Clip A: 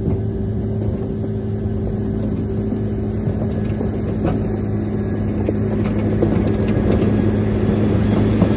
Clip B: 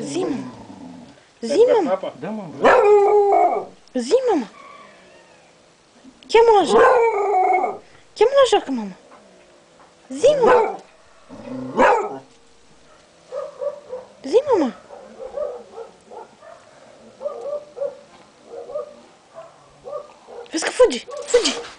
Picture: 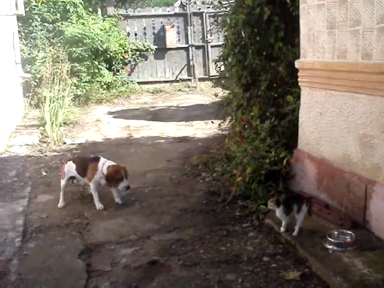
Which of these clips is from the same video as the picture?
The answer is B